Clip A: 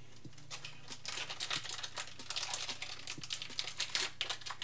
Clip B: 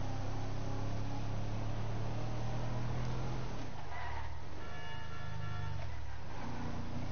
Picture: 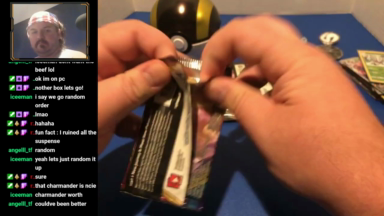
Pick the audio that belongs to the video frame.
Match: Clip A